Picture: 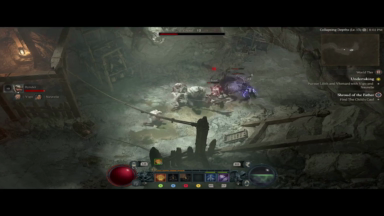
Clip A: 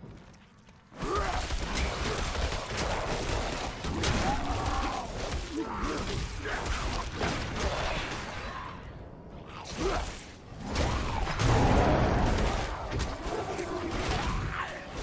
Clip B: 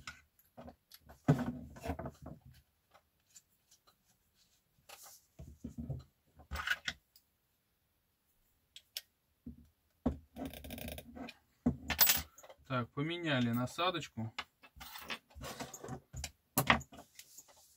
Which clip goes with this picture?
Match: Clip A